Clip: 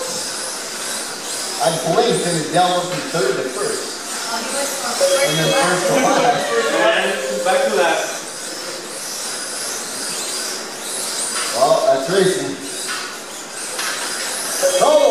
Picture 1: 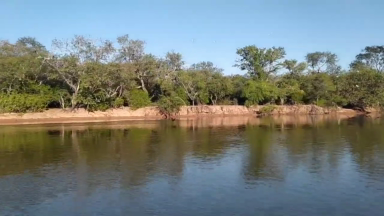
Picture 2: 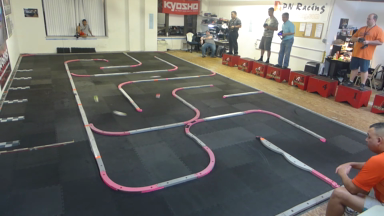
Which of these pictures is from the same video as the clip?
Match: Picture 2